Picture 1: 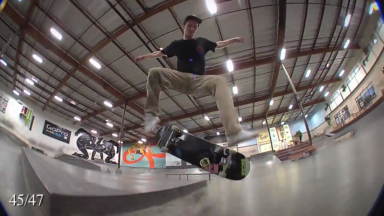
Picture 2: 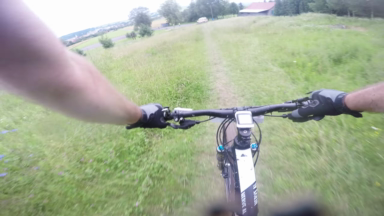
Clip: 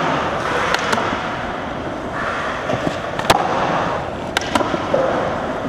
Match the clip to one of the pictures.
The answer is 1